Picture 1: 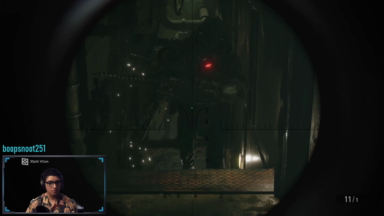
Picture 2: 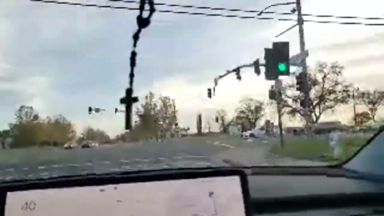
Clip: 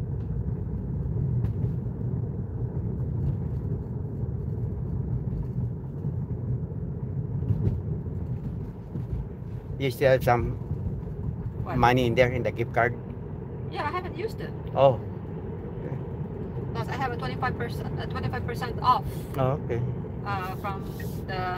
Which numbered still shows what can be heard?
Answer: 2